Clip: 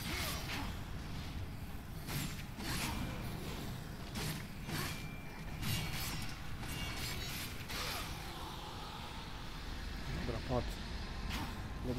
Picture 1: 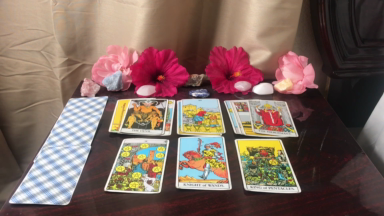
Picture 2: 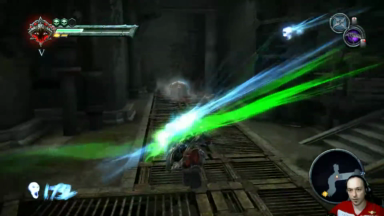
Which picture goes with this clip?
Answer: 2